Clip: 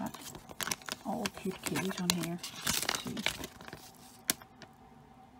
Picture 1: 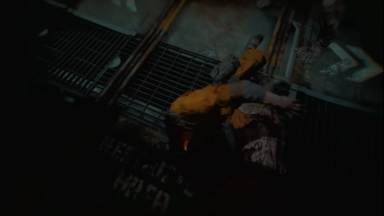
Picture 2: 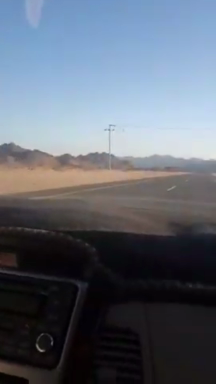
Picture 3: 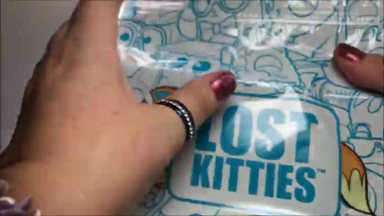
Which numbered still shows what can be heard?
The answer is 3